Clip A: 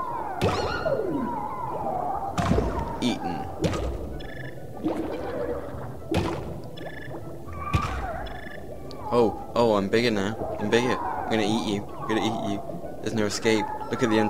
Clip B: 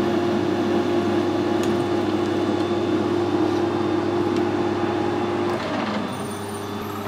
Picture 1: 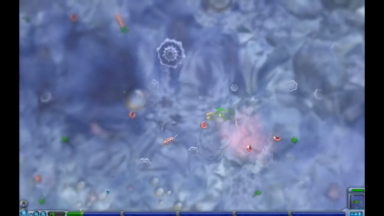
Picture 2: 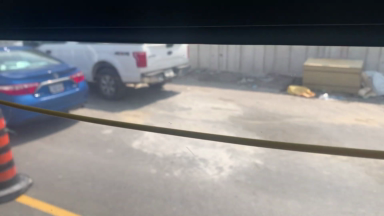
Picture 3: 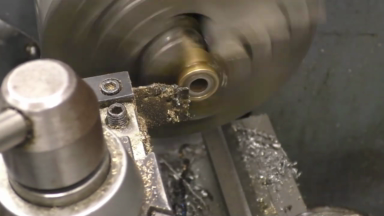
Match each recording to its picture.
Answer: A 1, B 3